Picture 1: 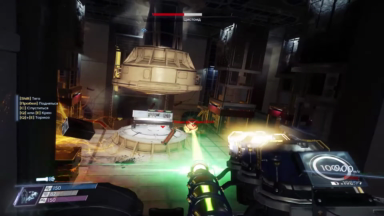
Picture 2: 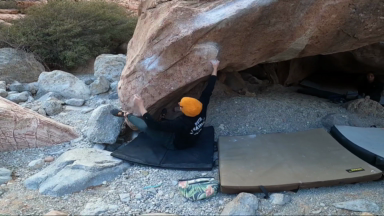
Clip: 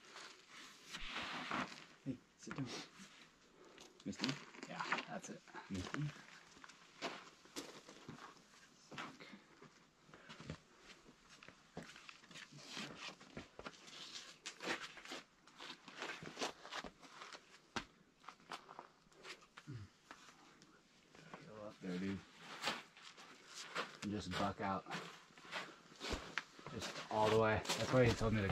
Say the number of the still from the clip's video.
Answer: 2